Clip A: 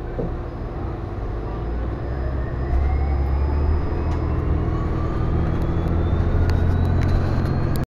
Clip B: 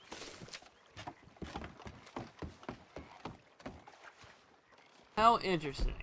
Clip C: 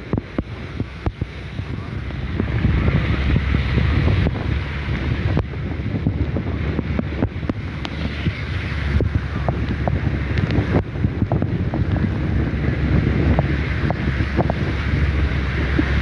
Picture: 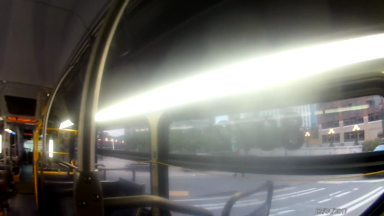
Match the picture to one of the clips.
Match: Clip A